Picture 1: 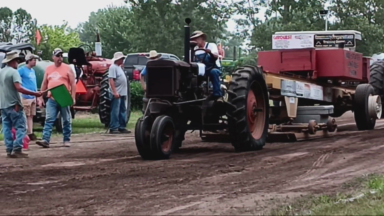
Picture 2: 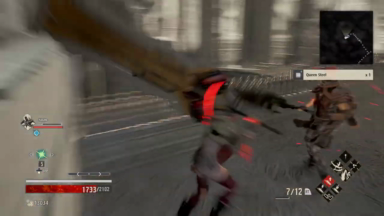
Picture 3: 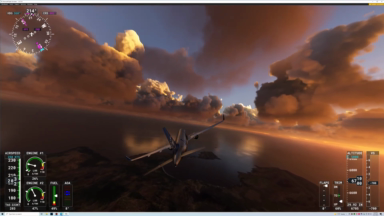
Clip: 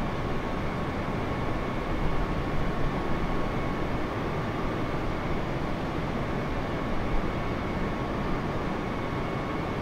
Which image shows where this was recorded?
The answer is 3